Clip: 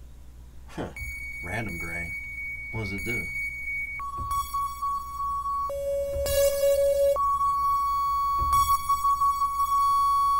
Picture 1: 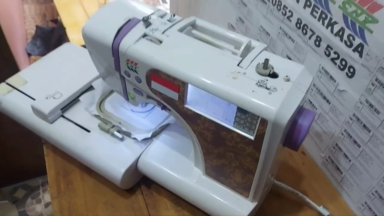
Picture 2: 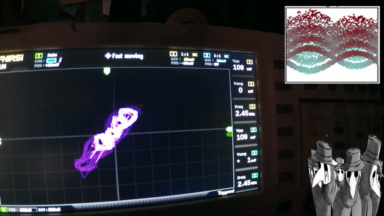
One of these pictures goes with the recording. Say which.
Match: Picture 2